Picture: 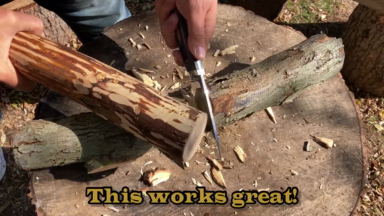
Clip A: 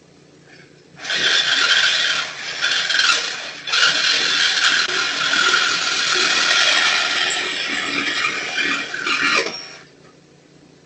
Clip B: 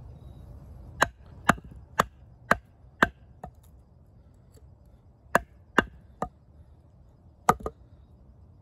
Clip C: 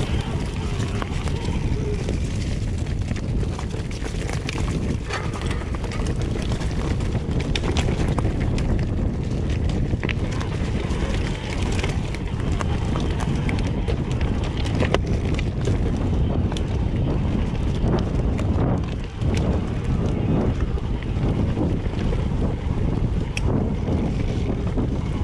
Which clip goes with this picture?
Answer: B